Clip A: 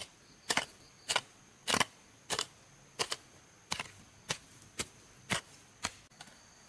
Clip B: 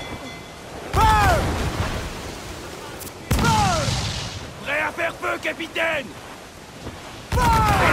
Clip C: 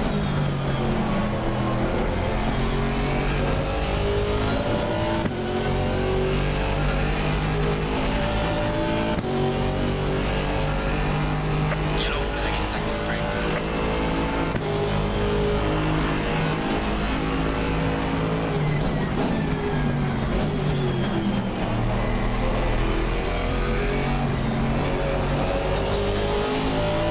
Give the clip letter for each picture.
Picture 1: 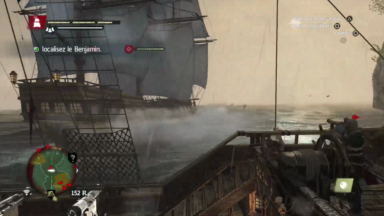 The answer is B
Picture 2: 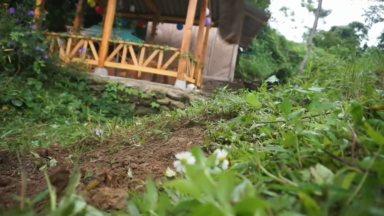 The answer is A